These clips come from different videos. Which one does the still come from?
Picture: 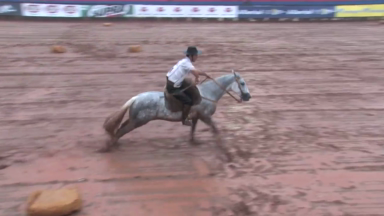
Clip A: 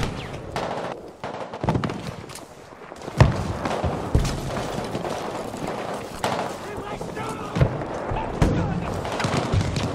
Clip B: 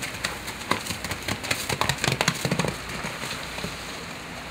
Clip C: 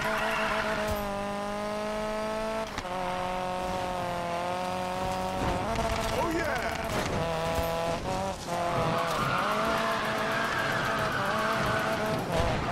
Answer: B